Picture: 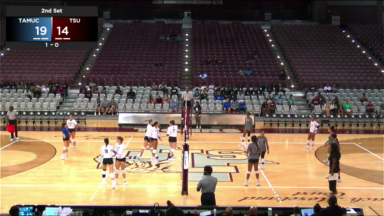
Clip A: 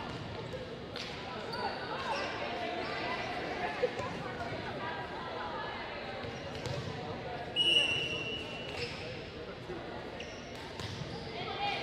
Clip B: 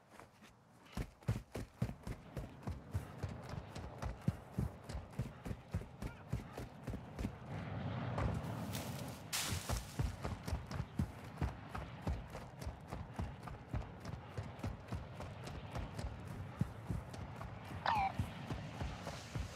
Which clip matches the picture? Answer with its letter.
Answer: A